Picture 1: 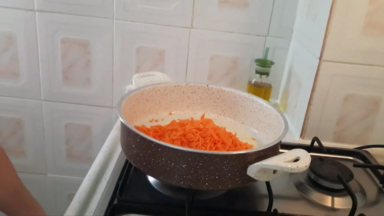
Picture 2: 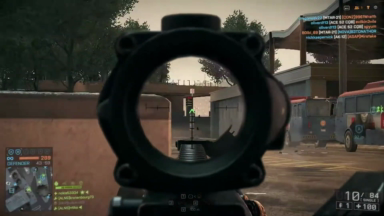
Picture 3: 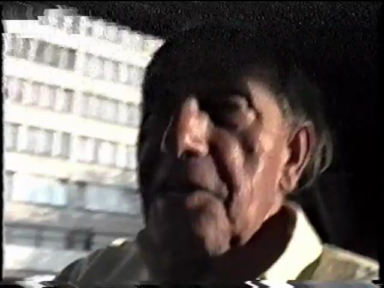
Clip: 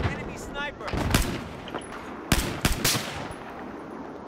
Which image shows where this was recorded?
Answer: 2